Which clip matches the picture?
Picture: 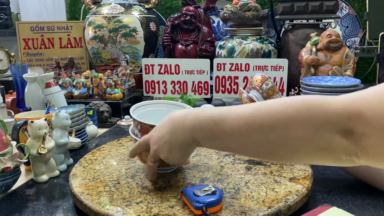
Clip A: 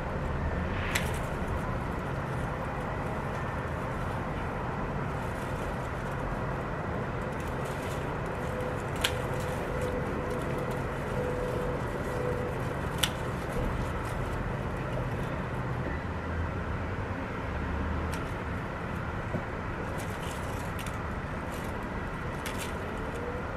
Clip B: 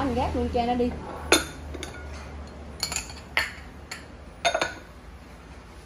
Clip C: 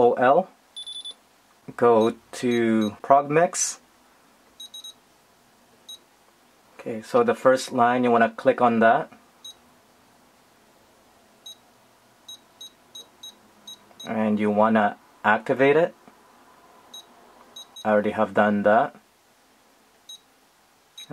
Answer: B